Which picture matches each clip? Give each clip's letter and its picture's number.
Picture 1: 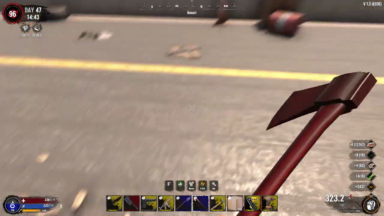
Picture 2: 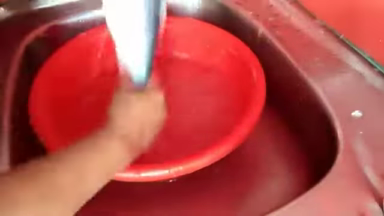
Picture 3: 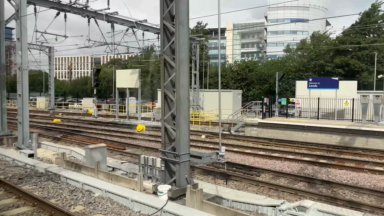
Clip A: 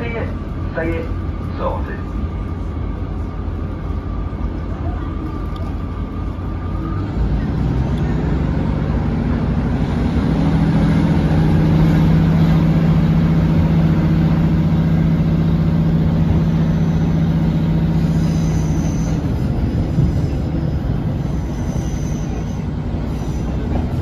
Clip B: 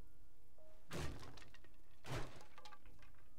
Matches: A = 3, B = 1